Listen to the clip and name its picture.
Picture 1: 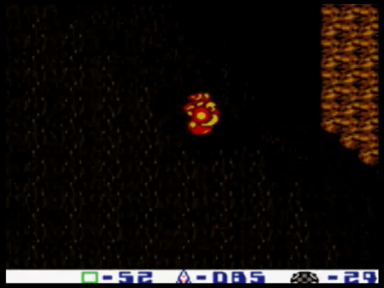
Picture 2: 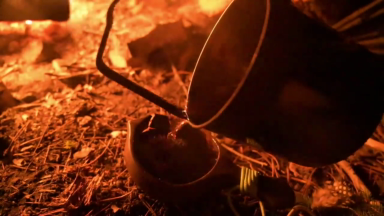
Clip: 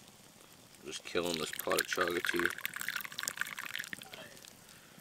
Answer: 2